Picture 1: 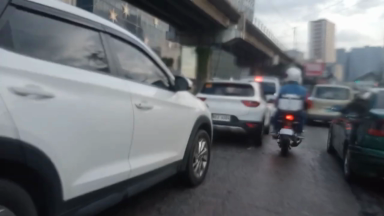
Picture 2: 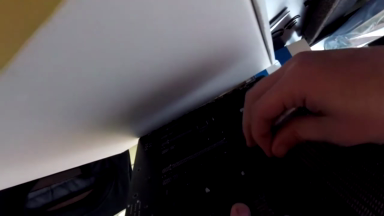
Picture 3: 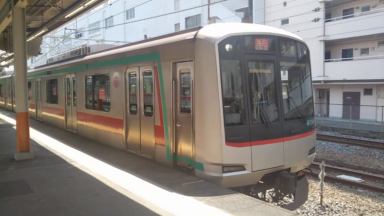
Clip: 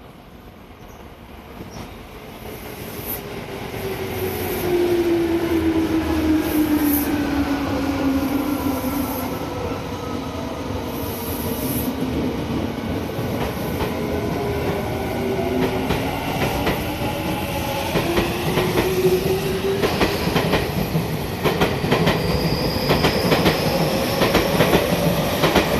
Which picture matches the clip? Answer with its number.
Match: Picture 3